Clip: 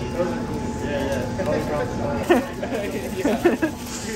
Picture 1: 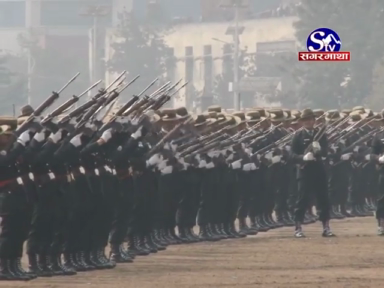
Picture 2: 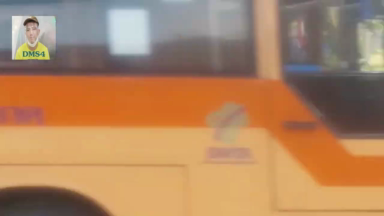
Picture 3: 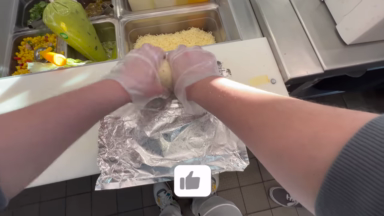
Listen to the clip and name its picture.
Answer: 3